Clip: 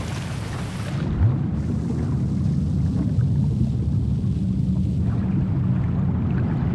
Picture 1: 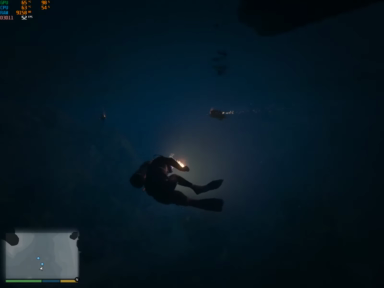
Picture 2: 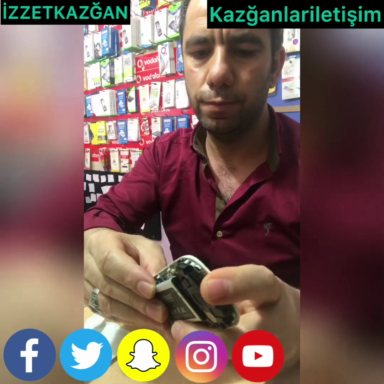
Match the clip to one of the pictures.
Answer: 1